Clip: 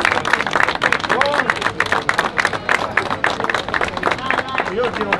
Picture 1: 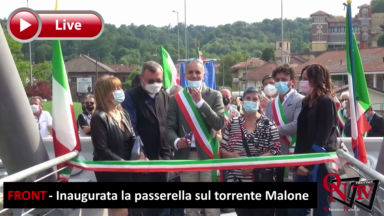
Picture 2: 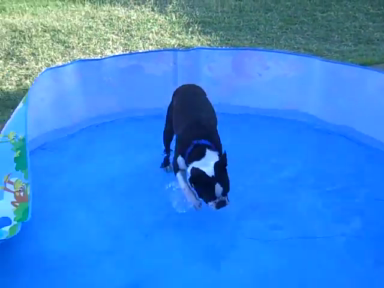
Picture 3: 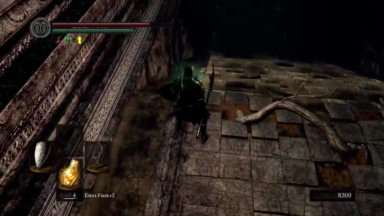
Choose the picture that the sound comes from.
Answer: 1